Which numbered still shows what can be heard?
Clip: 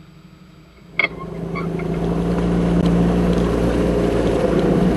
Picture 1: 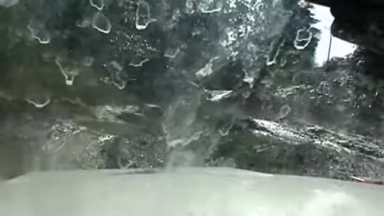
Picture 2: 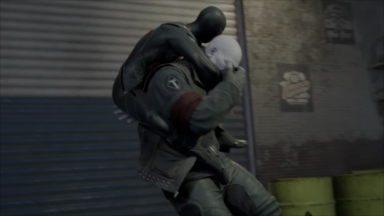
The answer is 1